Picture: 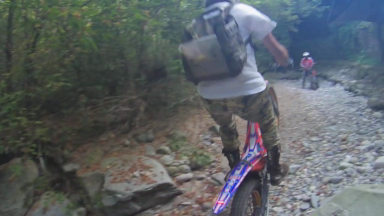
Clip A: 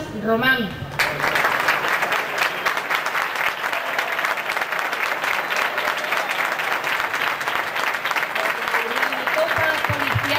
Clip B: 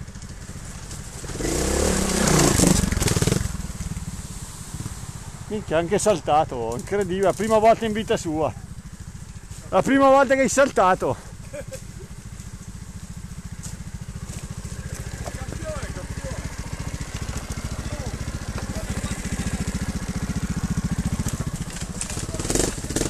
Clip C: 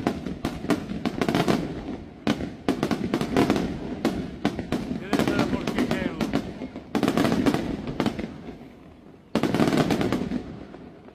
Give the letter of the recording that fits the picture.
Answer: B